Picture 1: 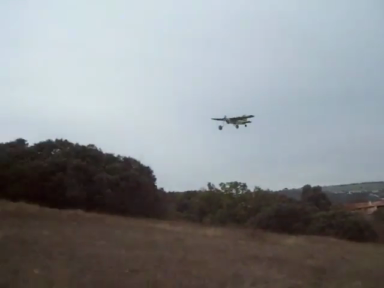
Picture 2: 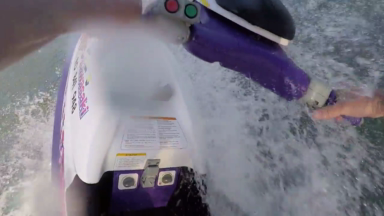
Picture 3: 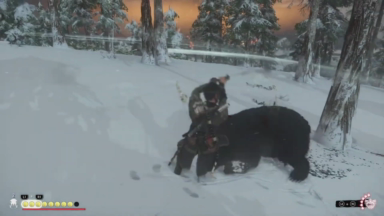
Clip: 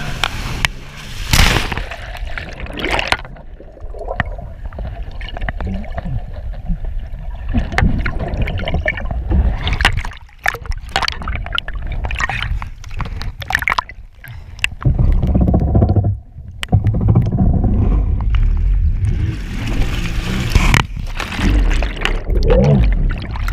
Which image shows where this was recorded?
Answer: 2